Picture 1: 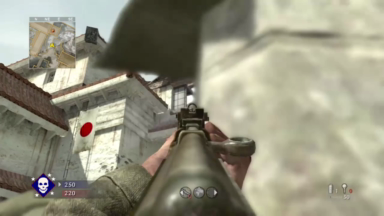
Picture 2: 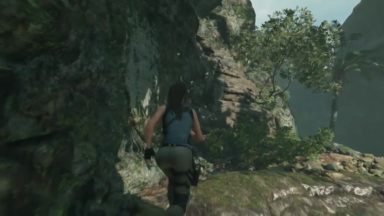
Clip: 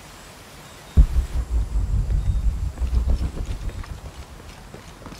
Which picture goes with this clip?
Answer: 2